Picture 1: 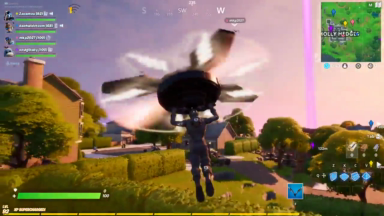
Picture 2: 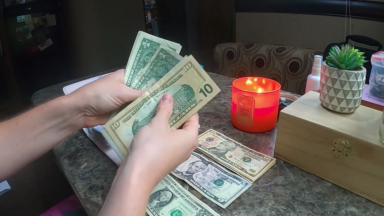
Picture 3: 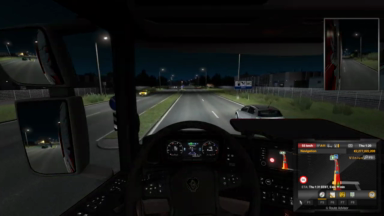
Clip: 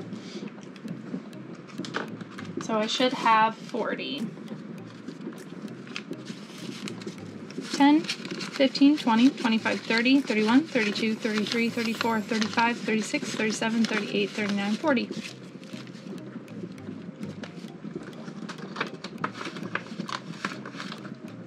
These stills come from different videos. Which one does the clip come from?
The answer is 2